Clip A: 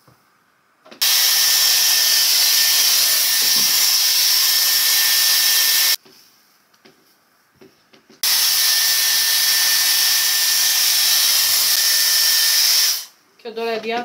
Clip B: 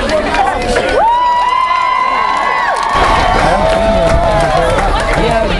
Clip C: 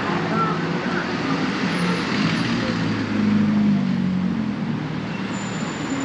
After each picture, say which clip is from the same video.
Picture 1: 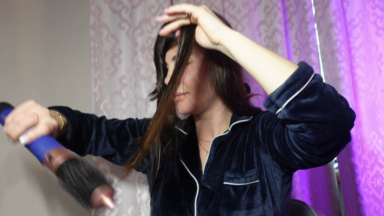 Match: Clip A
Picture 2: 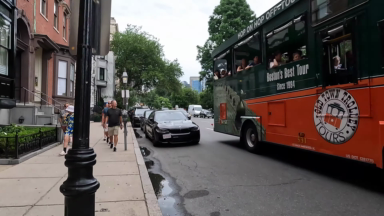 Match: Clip C